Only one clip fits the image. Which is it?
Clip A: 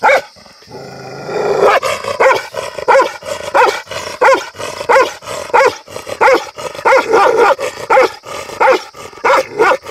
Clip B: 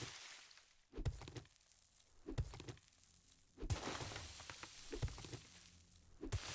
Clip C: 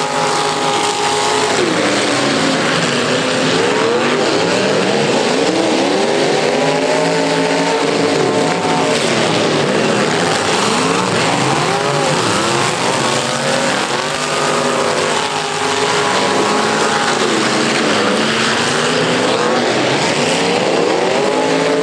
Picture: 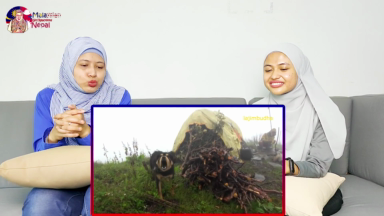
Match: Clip A